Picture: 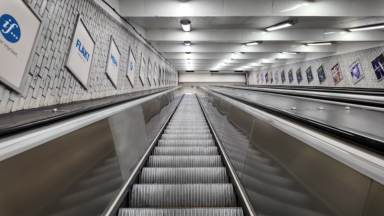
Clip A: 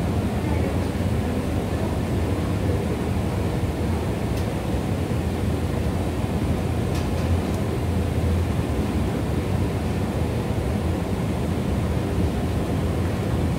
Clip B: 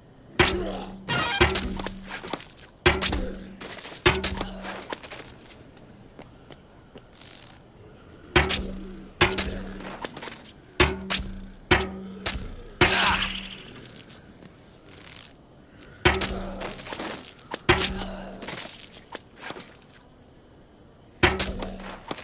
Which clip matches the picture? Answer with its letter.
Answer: A